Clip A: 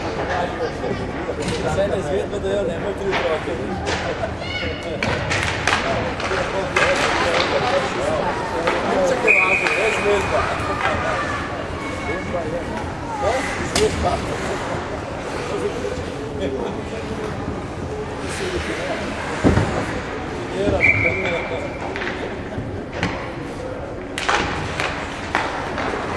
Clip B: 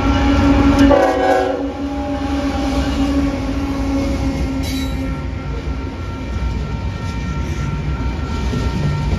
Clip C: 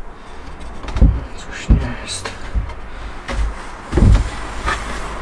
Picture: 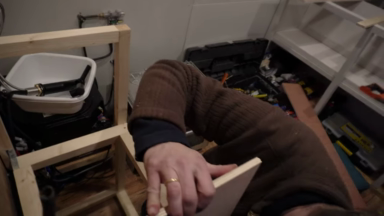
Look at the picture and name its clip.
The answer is C